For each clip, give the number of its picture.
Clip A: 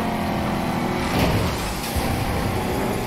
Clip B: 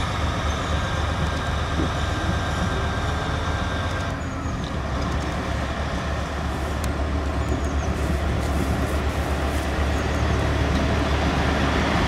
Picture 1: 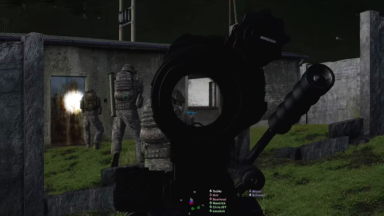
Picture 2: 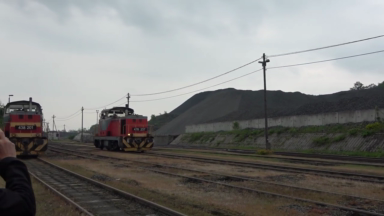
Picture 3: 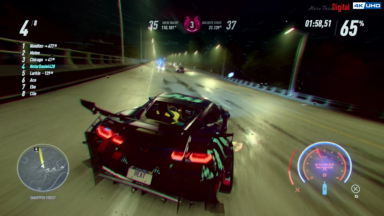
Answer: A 3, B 2